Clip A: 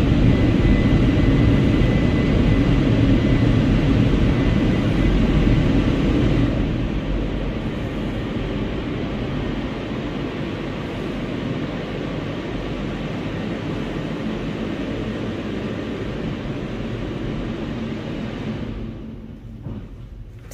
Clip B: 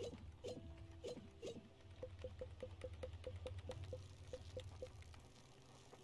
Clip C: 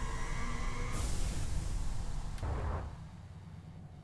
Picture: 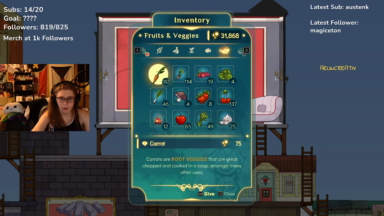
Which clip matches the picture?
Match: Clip B